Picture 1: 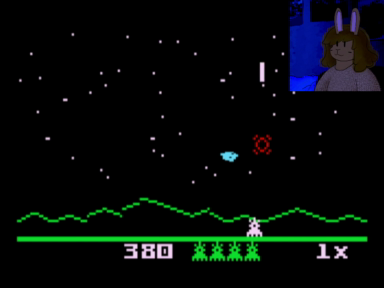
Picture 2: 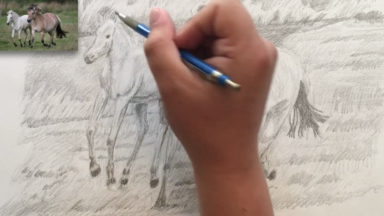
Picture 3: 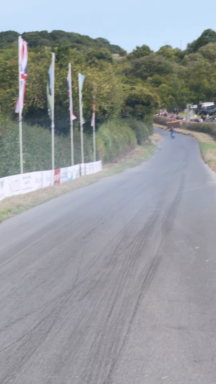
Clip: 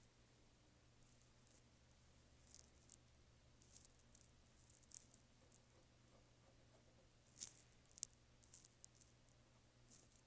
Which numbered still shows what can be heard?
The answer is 2